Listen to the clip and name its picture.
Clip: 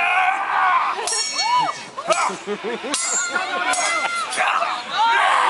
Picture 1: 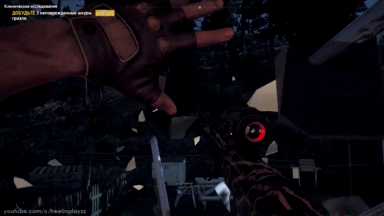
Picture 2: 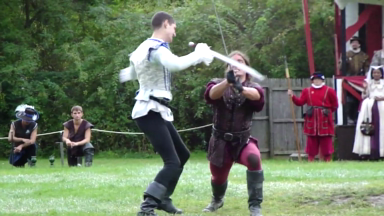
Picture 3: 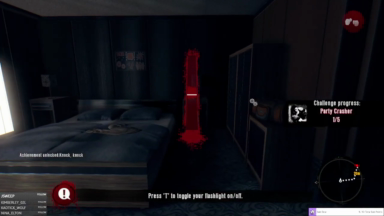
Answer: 2